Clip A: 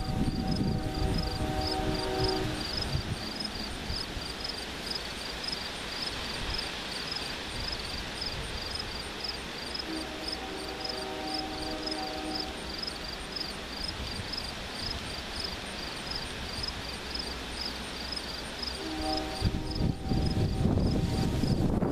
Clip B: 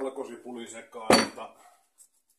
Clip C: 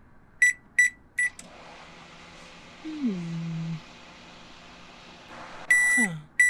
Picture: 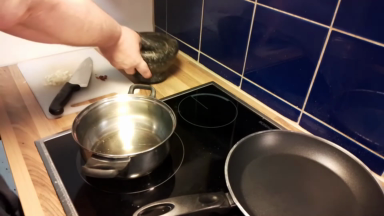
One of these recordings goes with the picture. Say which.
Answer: B